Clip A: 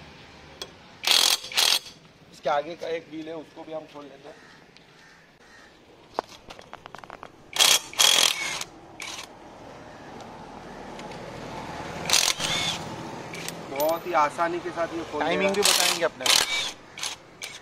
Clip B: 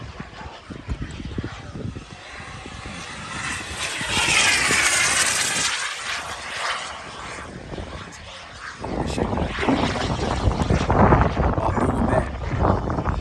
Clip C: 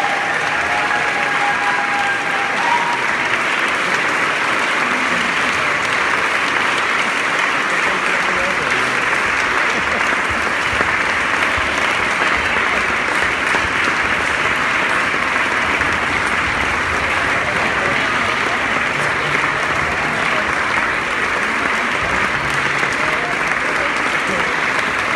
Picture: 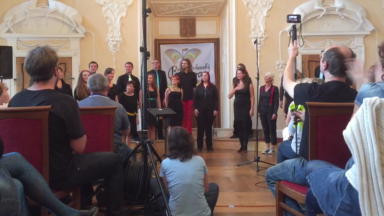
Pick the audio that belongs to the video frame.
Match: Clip C